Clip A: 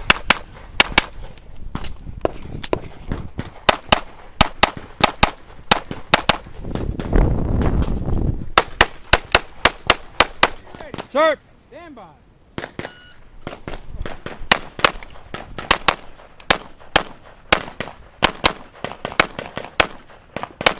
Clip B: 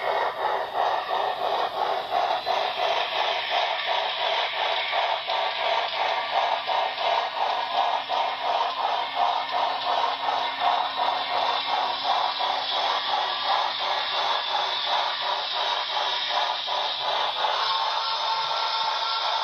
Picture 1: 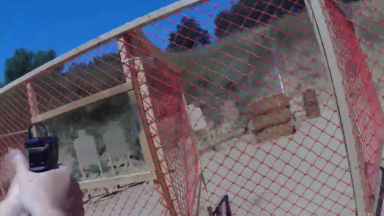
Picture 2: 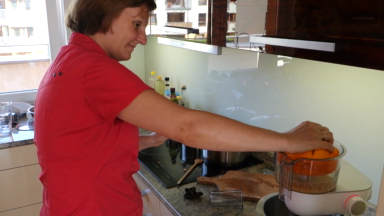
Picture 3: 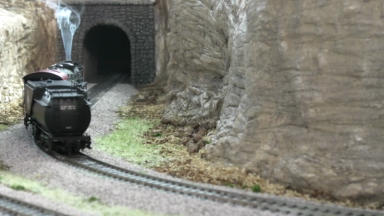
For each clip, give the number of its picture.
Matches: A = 1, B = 3